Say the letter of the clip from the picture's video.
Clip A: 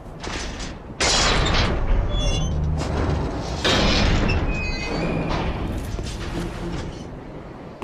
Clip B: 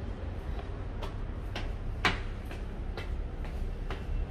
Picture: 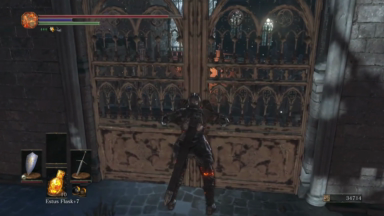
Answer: A